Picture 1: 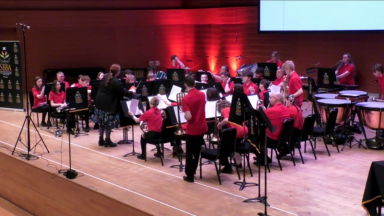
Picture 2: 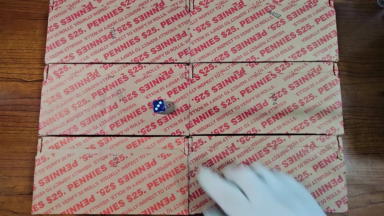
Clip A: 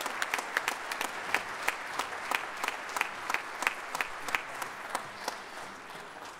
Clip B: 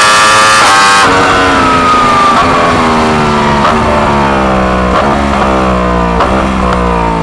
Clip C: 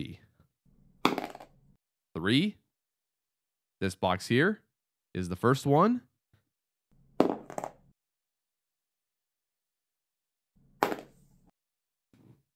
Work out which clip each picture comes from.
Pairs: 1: A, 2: C